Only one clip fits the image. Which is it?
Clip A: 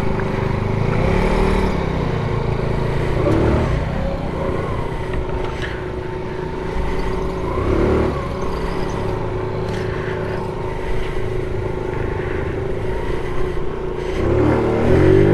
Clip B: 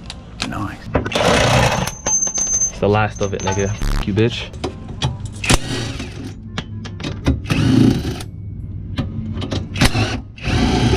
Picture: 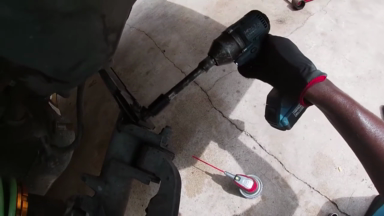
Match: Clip B